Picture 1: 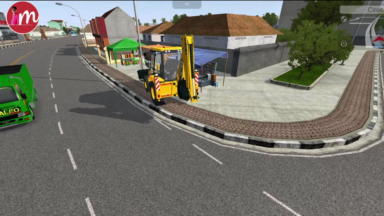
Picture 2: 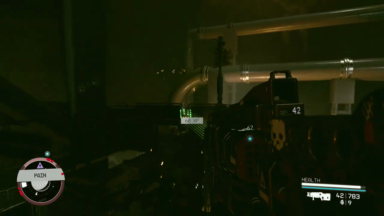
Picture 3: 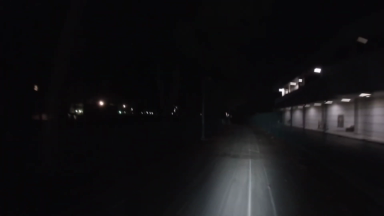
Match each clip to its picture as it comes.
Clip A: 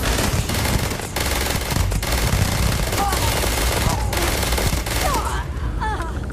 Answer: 2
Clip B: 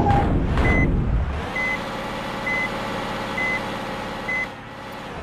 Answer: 1